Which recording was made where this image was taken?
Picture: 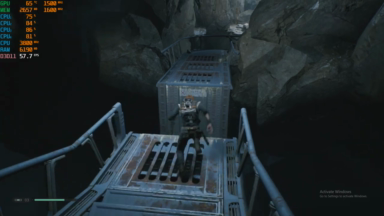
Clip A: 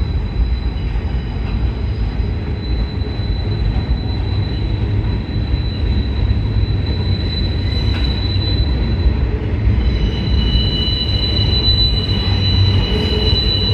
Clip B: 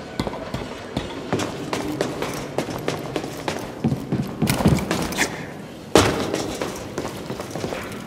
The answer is B